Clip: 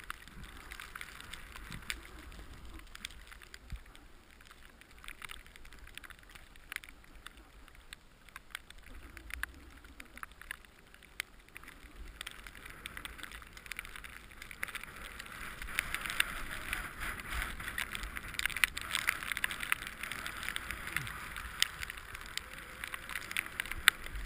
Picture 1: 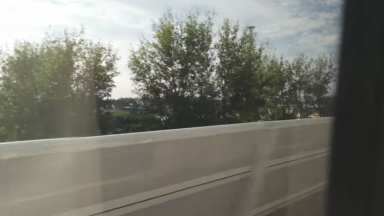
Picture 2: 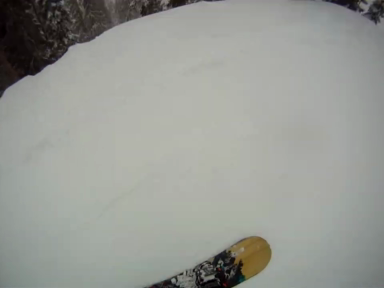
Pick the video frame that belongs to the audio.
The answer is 2